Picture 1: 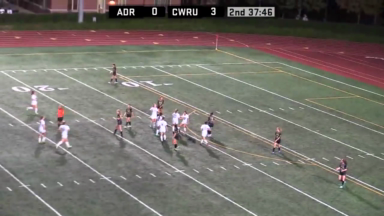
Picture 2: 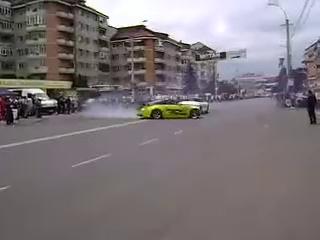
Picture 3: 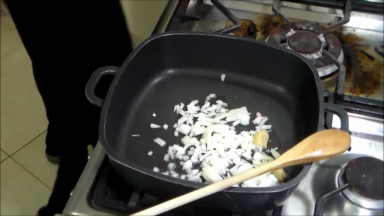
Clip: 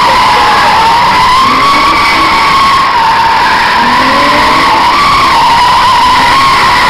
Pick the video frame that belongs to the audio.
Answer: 2